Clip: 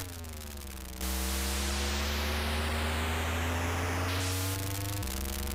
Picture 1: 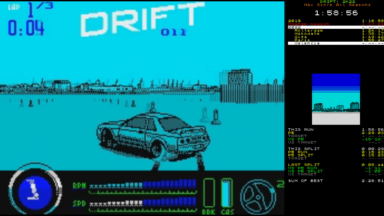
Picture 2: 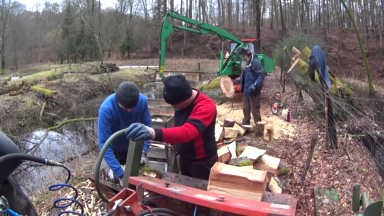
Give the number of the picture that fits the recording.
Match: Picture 1